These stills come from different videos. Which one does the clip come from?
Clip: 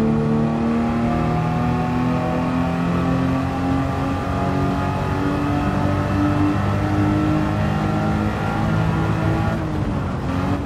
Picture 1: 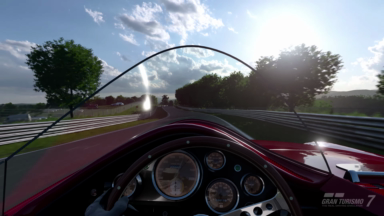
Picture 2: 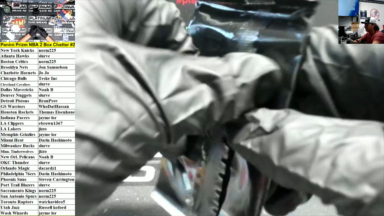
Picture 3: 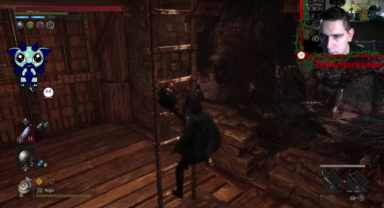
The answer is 1